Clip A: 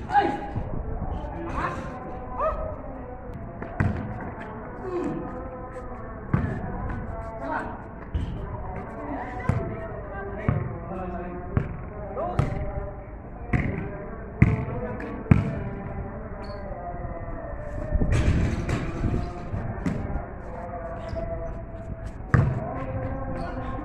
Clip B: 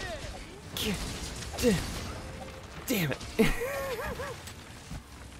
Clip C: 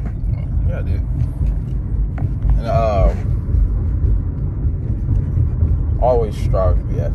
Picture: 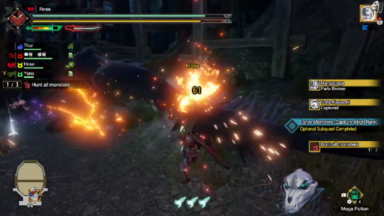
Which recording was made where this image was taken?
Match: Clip B